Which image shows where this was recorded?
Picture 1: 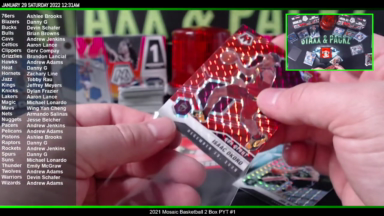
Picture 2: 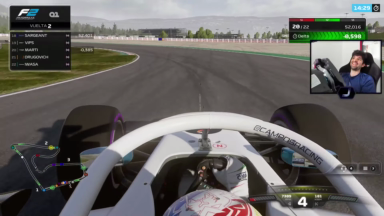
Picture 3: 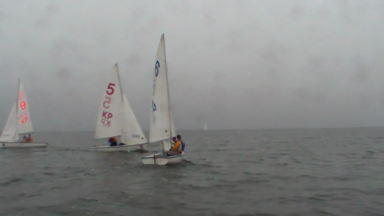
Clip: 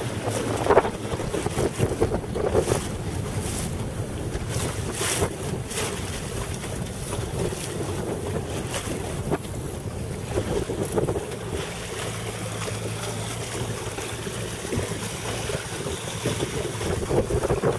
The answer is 3